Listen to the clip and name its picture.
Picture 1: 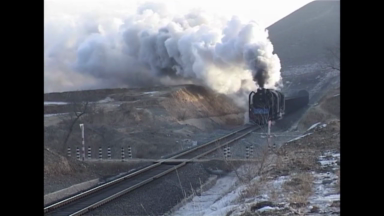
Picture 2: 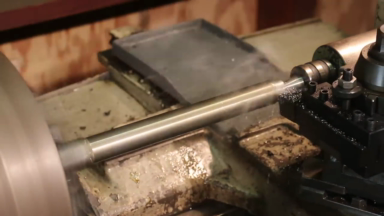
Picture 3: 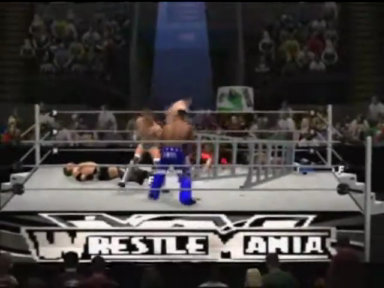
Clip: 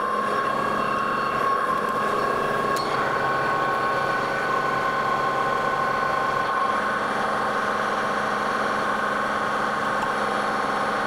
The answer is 2